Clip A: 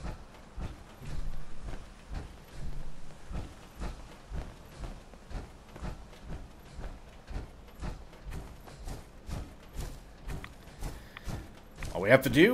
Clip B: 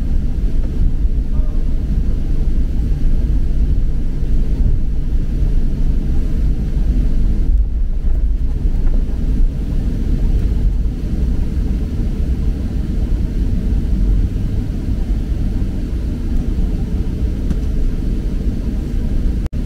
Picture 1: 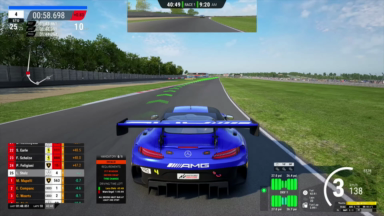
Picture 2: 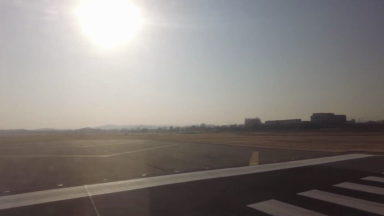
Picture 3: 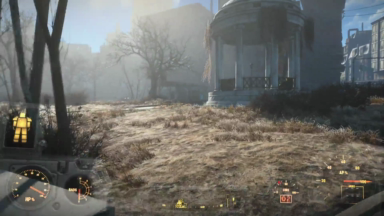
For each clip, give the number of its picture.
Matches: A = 3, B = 2